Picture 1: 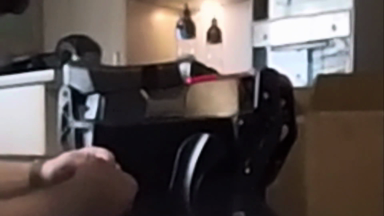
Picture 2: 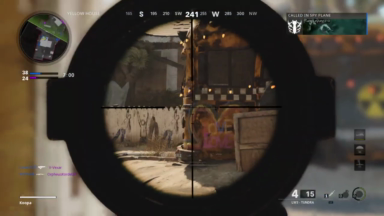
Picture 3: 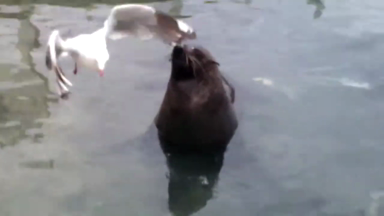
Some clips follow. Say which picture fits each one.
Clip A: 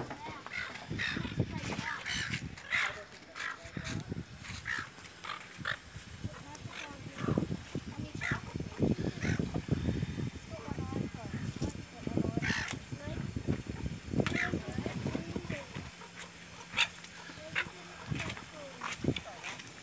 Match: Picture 3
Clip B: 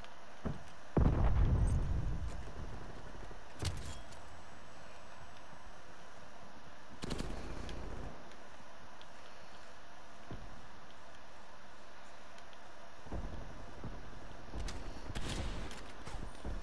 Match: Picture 2